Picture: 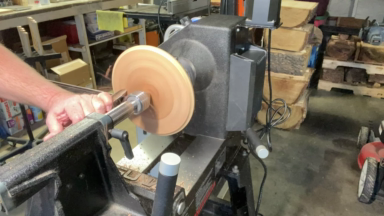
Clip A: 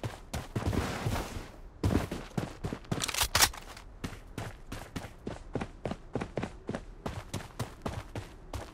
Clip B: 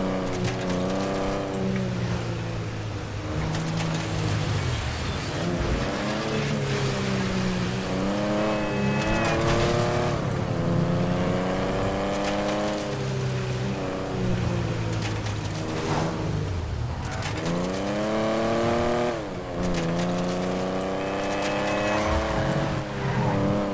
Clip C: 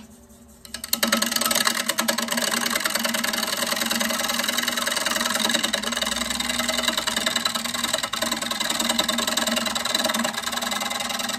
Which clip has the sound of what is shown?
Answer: C